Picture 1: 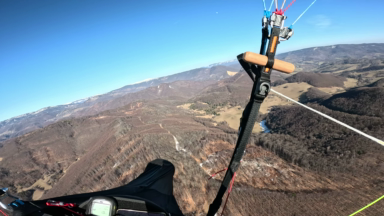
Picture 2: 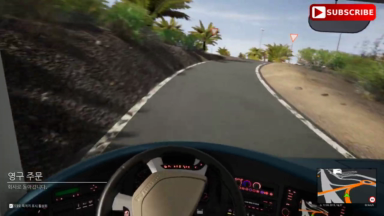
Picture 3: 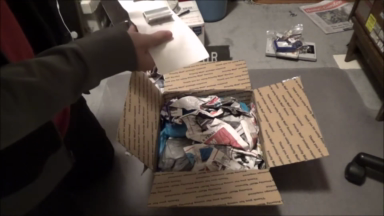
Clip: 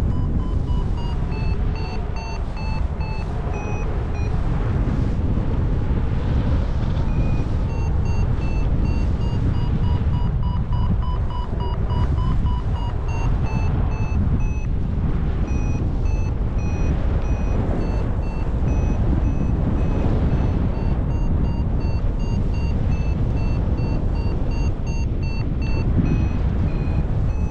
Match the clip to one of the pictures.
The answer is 1